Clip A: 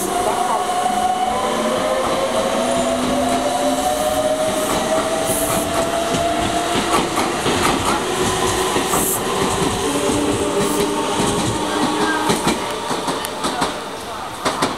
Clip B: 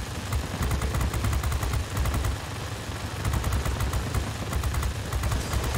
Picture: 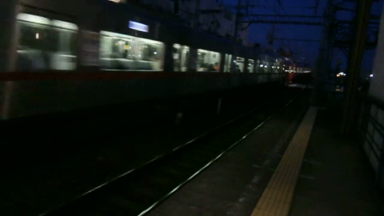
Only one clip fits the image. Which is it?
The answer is A